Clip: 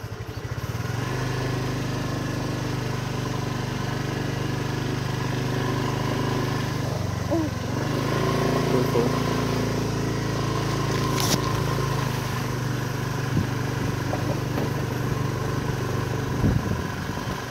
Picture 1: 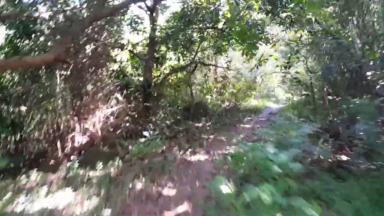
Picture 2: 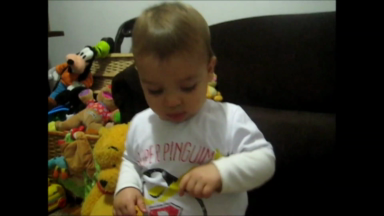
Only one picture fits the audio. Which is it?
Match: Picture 1